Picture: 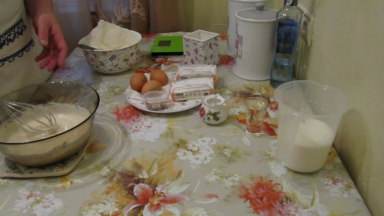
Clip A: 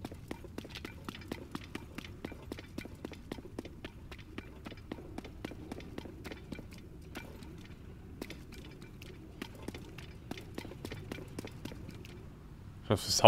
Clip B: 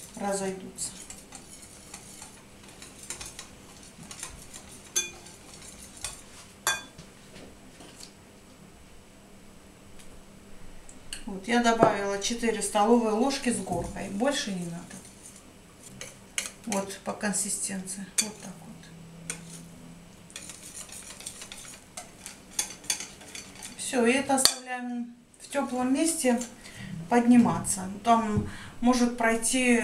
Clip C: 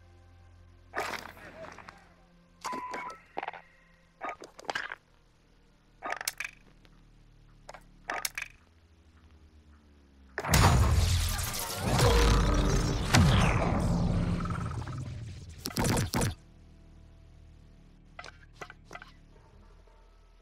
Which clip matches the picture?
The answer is B